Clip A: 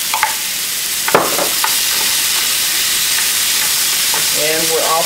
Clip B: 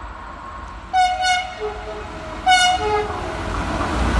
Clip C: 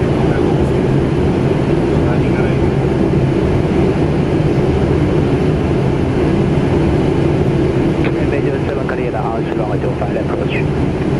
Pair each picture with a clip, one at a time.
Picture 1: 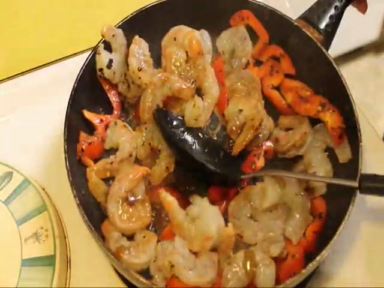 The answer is A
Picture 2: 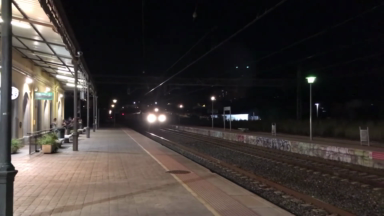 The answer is B